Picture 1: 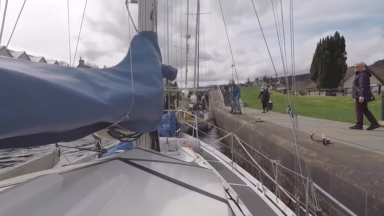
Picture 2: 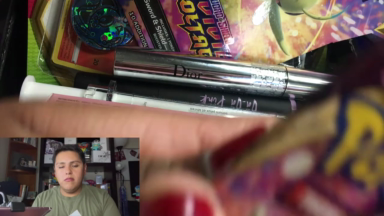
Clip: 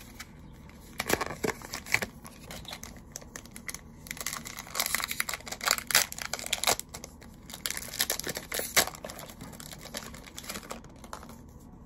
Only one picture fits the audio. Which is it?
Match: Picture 2